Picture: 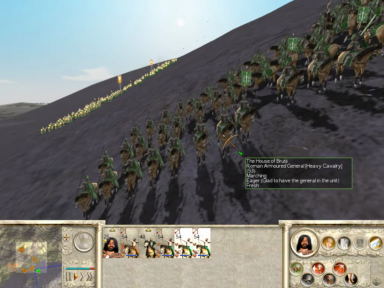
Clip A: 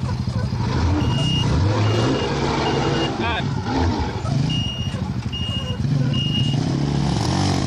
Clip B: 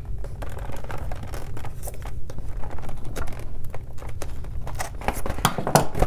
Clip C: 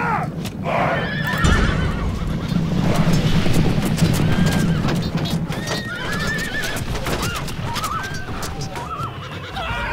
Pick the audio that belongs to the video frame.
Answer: C